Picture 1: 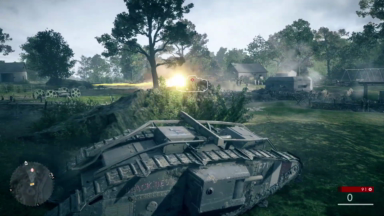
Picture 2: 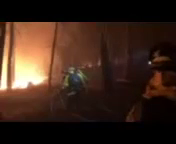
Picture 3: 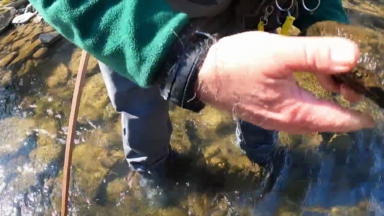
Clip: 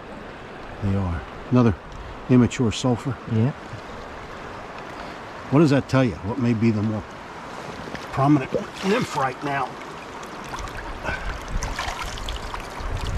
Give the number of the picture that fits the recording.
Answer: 3